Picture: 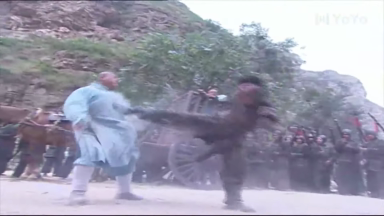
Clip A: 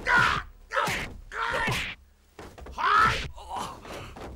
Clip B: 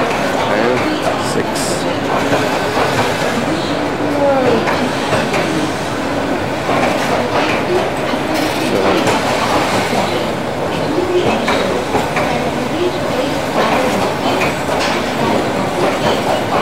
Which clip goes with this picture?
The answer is A